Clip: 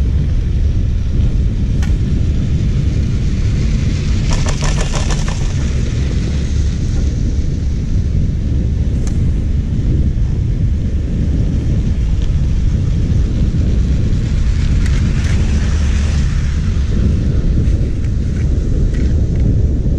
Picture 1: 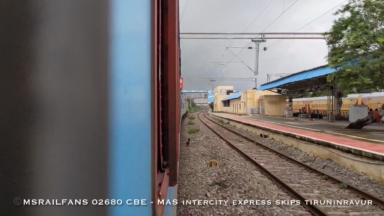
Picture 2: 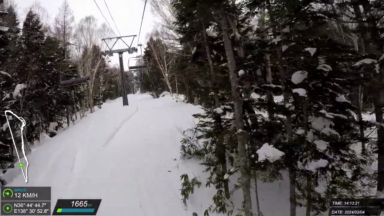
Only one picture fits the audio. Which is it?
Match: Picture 2